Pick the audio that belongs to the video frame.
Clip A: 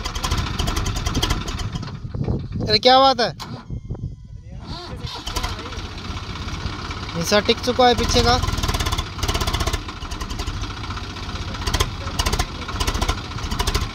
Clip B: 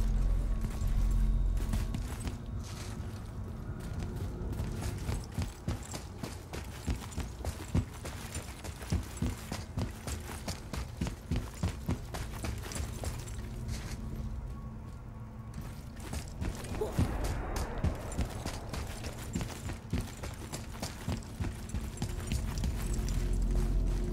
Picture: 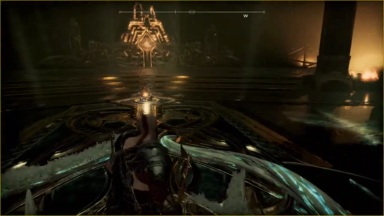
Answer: B